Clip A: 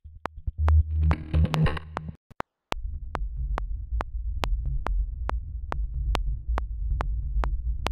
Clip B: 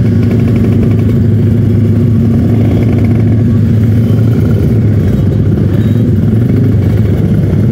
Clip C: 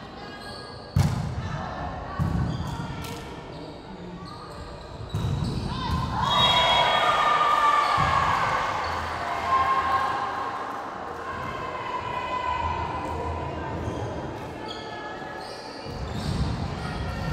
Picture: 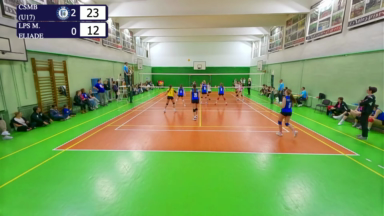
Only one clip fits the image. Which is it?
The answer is C